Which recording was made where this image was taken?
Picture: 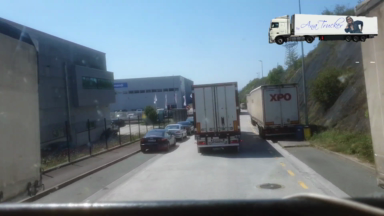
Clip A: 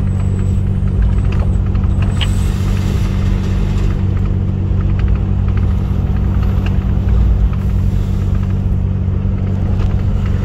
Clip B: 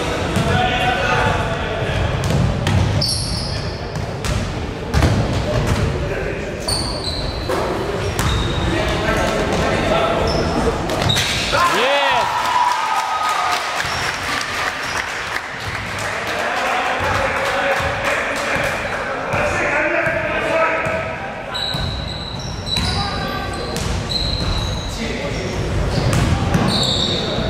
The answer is A